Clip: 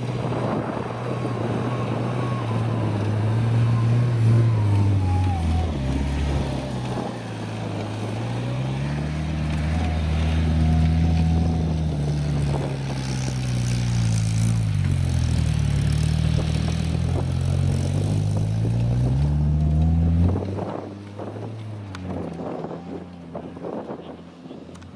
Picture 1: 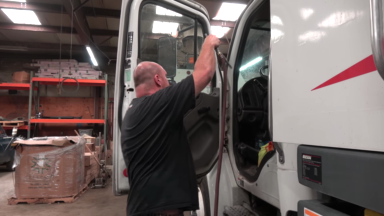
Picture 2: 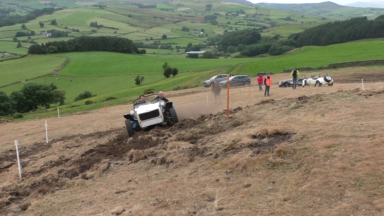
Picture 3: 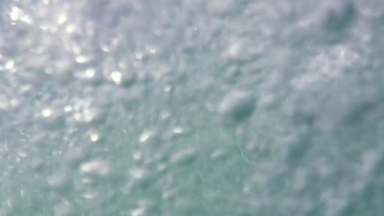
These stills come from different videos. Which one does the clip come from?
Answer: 2